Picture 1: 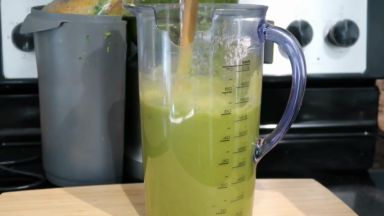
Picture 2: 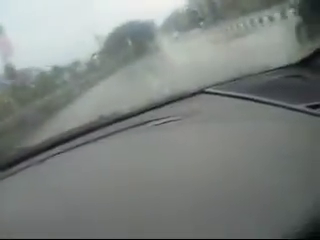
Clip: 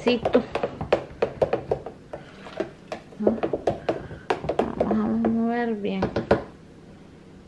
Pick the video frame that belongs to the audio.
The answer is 1